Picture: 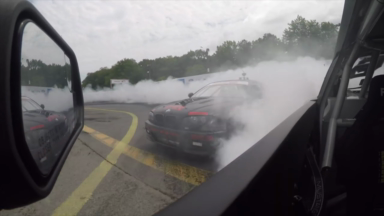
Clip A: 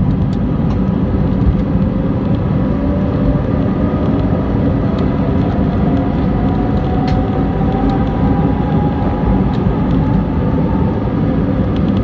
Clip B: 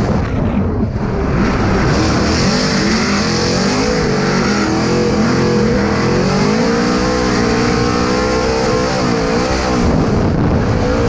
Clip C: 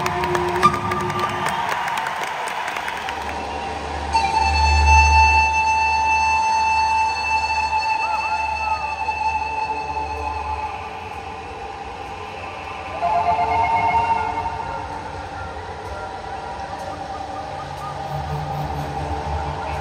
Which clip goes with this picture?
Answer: B